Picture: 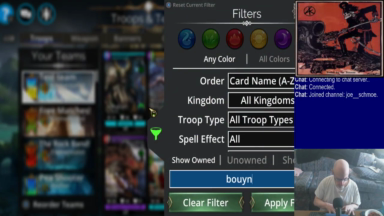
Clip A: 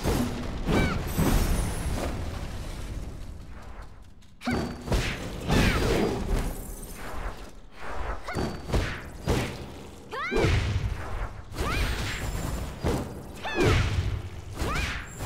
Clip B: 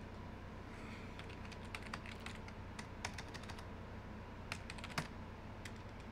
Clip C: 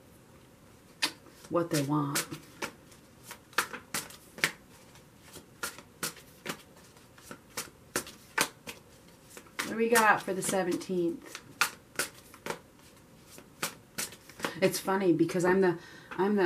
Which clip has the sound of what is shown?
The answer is B